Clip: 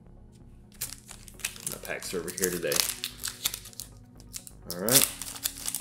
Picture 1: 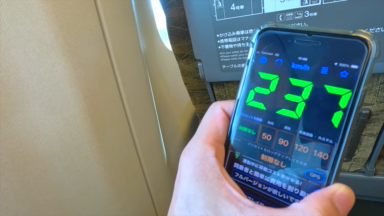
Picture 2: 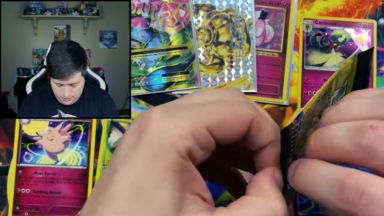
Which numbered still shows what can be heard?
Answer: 2